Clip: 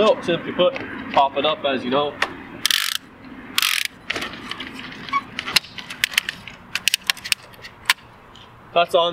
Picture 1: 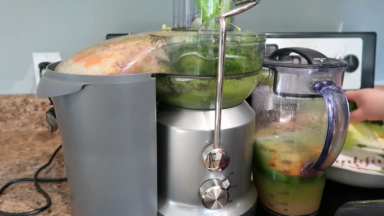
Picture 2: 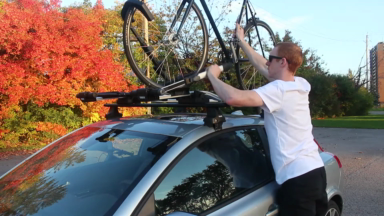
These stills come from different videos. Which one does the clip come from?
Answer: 2